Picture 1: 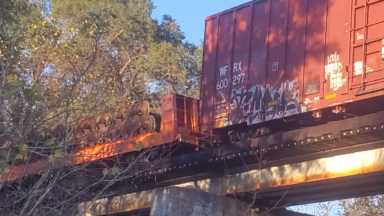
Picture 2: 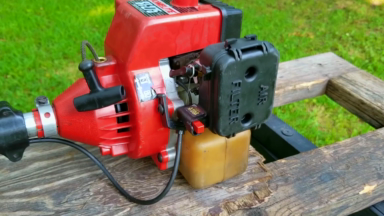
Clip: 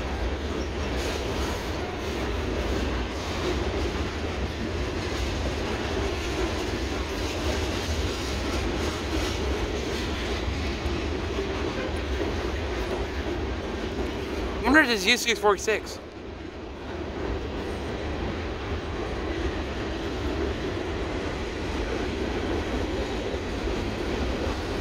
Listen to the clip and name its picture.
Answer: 1